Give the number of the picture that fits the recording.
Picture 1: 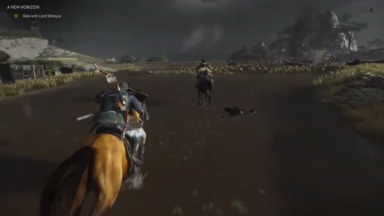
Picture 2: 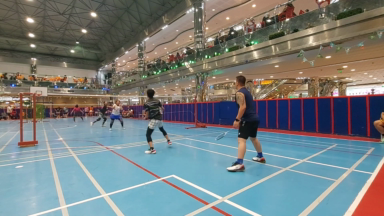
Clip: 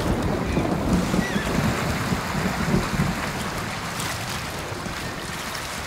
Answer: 1